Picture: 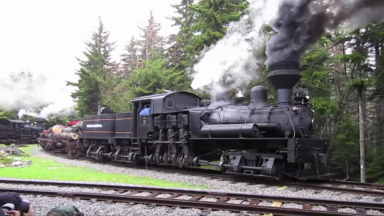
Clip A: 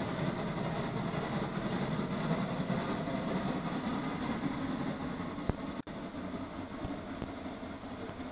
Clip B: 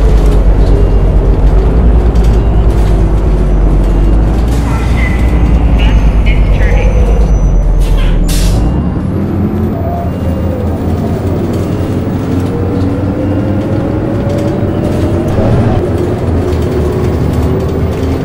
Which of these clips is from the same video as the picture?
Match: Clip A